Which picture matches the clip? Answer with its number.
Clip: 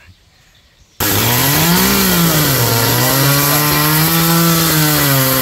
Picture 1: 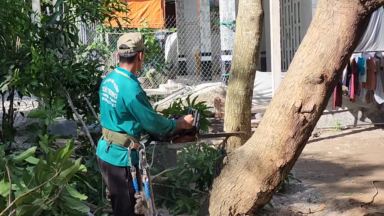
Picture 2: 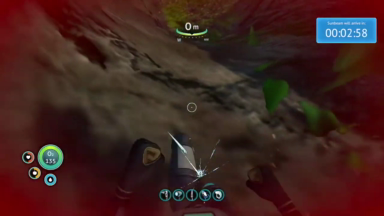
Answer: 1